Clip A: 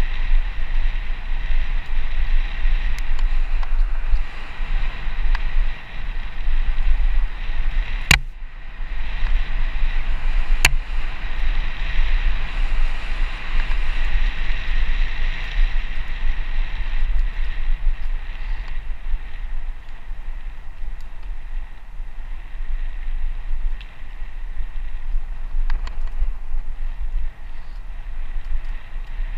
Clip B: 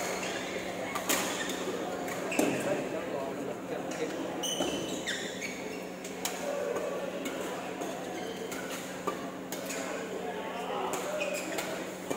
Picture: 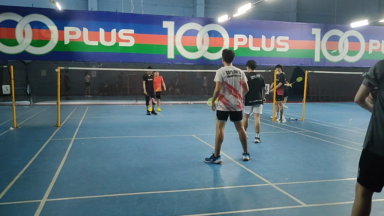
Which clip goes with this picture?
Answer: B